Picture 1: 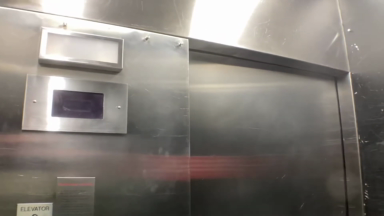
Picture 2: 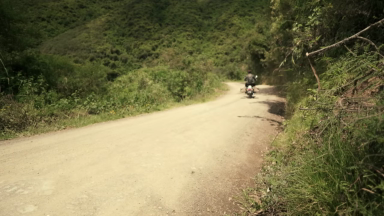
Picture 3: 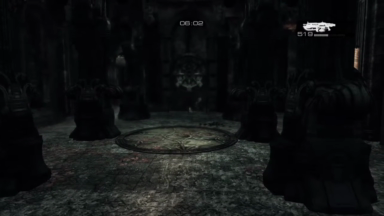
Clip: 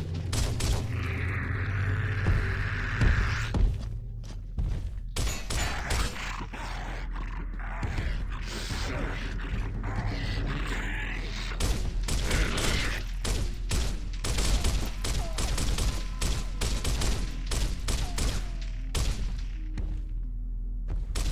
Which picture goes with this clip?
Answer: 3